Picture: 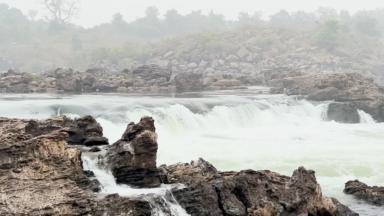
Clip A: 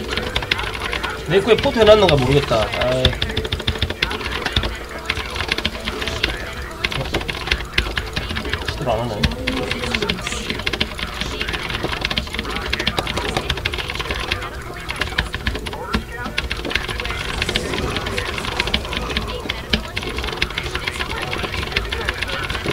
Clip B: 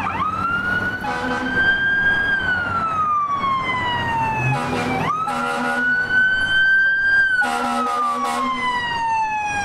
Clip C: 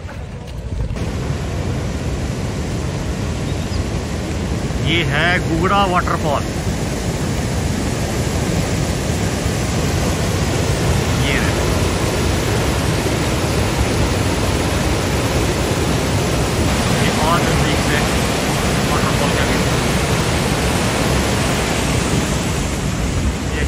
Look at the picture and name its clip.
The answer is C